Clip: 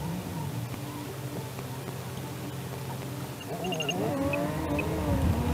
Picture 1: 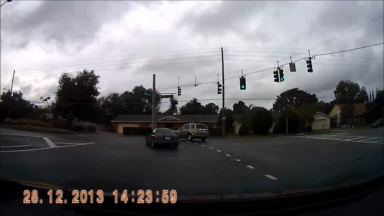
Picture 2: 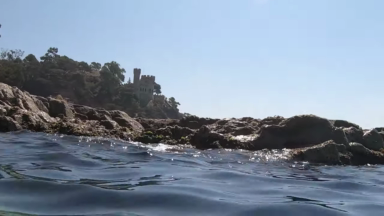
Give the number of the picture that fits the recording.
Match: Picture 1